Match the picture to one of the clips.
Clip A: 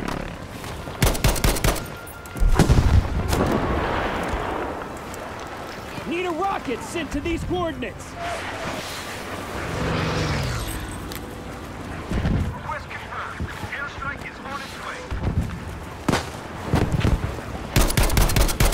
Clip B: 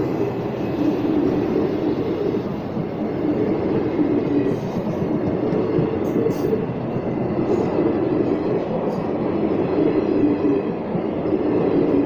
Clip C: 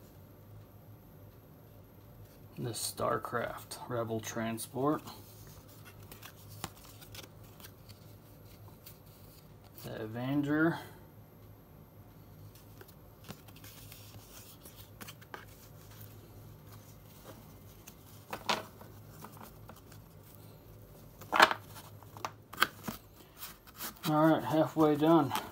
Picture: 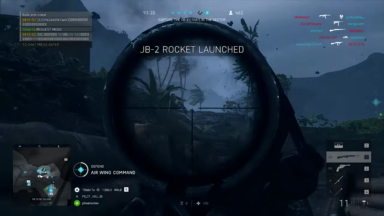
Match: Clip A